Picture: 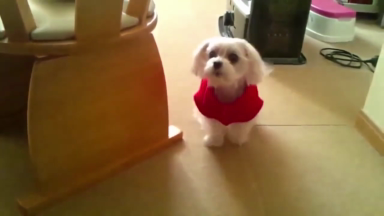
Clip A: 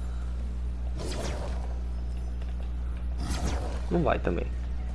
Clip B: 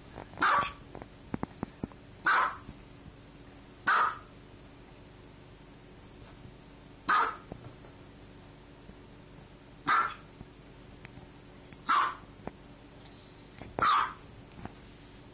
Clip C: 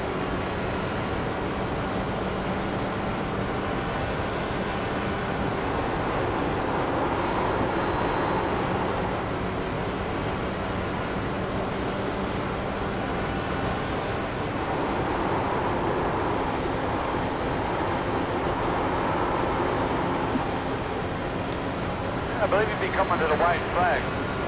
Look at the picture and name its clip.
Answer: B